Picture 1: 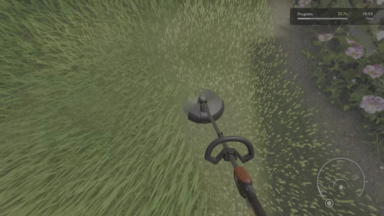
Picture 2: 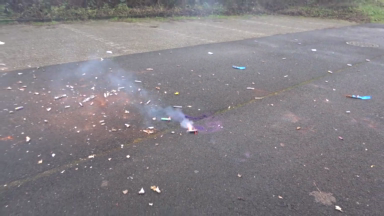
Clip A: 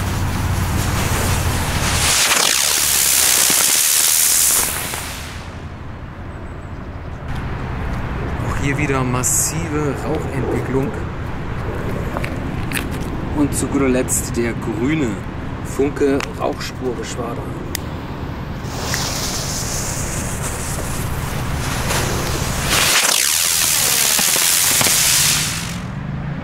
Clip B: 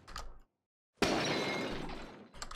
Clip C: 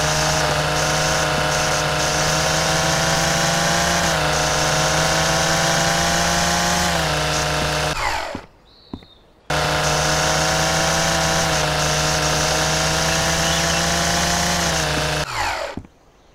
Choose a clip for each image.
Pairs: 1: C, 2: A